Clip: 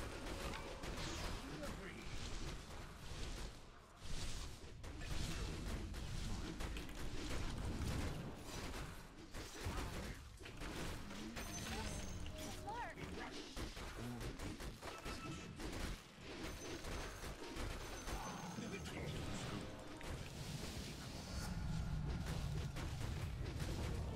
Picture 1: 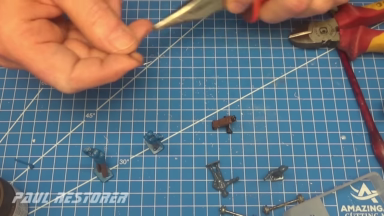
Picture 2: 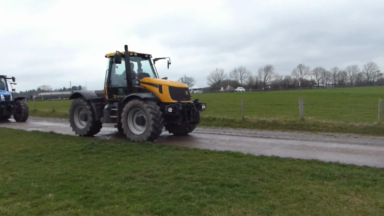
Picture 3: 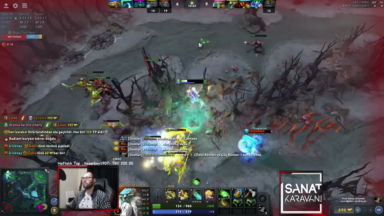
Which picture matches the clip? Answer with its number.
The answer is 3